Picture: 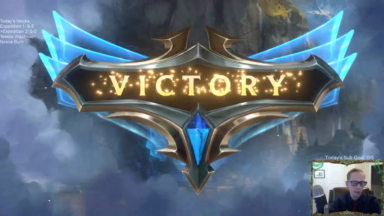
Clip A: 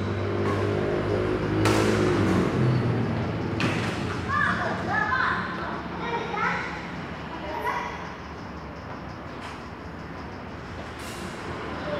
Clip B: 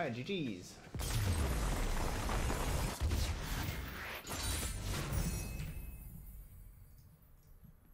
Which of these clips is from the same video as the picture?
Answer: B